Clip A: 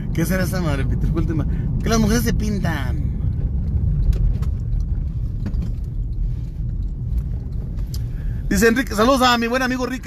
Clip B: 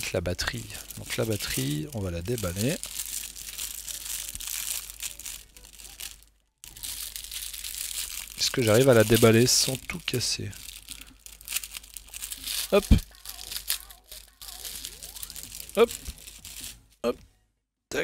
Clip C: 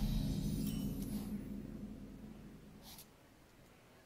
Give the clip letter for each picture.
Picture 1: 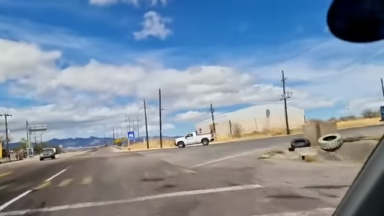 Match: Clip A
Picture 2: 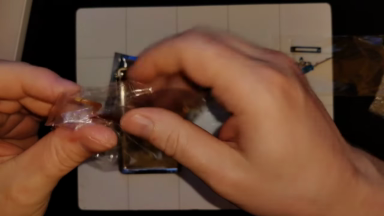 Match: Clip B